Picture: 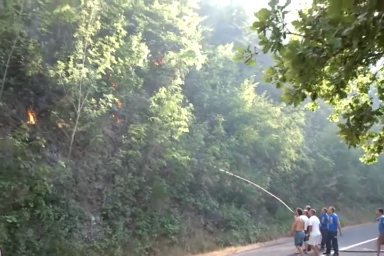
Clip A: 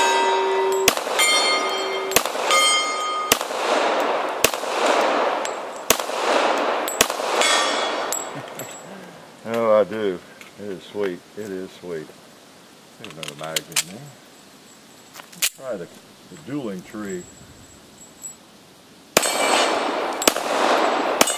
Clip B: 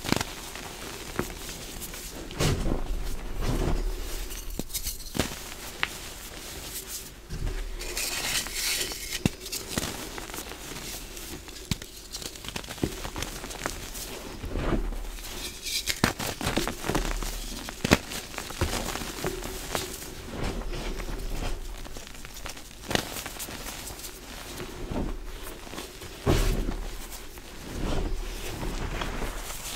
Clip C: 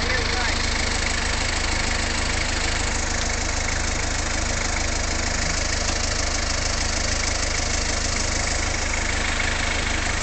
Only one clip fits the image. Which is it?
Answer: C